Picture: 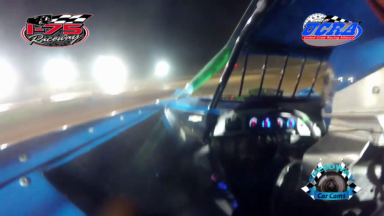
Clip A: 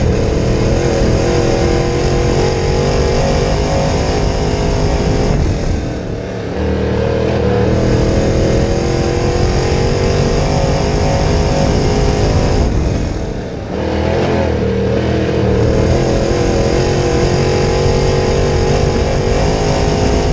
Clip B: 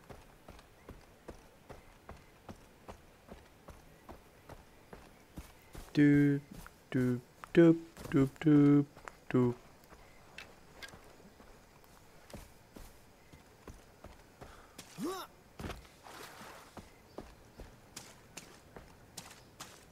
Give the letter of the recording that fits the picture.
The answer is A